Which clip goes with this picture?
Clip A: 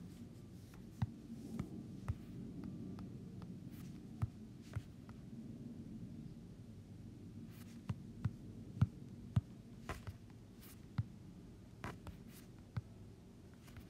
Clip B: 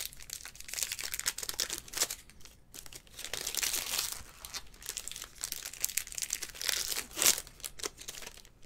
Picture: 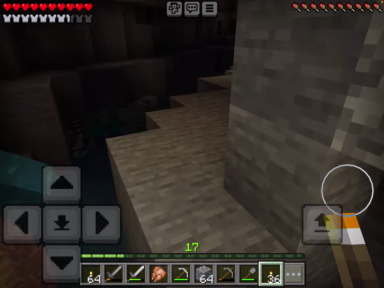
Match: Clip A